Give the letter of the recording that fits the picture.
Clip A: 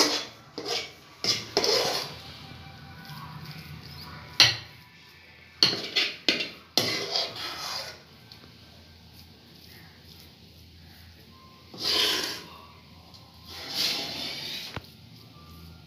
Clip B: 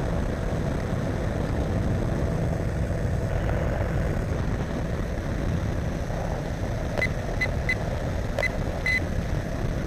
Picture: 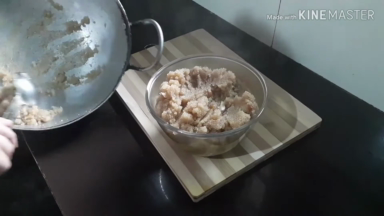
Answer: A